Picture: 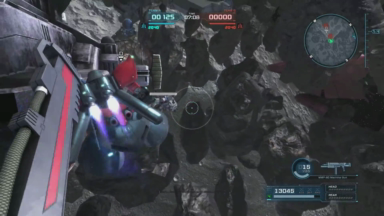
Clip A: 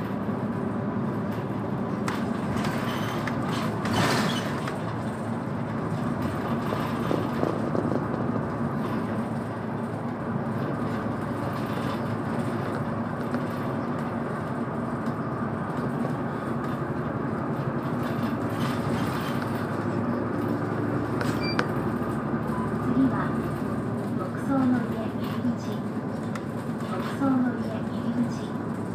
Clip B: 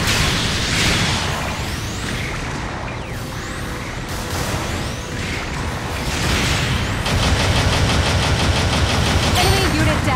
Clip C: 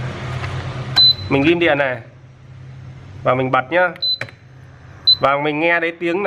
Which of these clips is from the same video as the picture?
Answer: B